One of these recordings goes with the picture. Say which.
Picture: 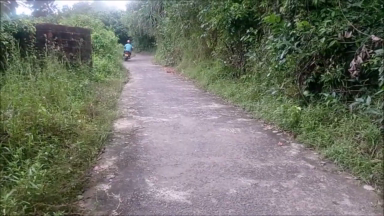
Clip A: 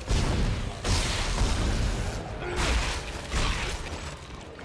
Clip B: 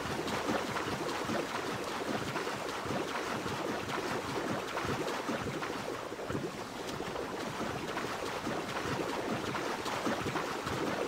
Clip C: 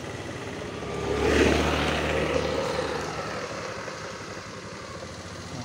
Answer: C